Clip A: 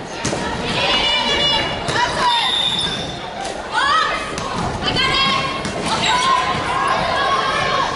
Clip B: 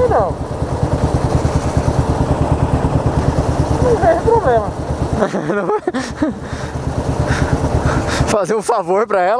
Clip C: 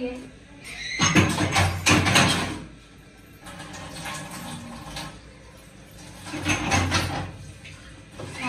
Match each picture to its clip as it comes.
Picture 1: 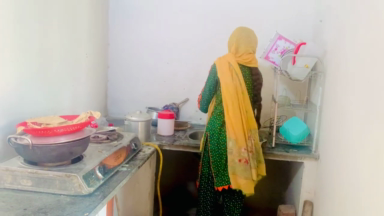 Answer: C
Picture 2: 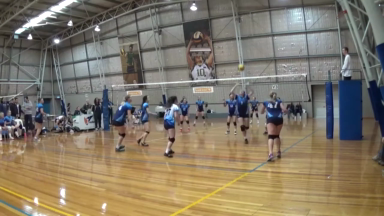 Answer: A